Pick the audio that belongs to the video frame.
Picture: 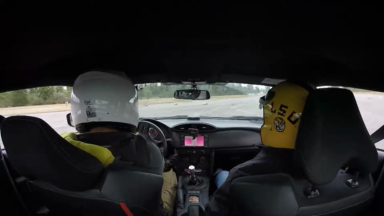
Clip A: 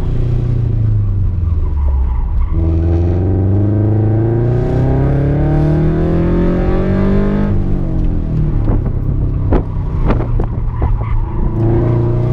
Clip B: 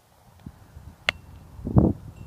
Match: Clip A